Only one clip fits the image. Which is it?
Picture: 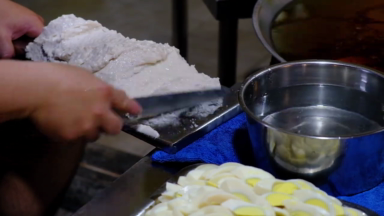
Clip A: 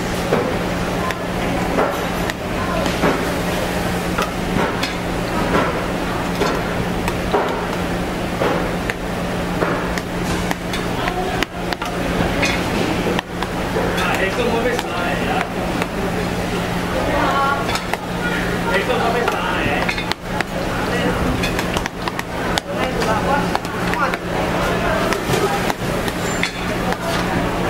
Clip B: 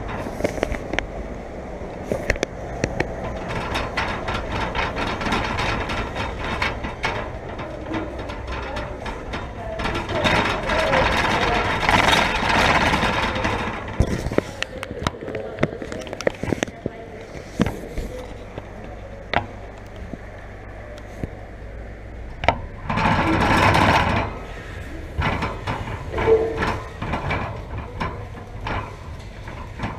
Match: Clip A